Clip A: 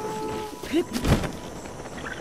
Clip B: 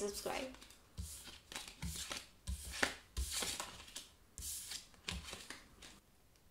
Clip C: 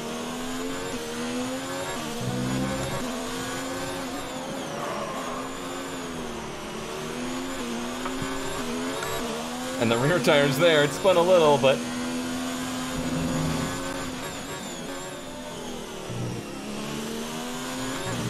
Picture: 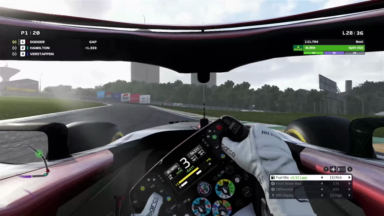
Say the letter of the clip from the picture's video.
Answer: C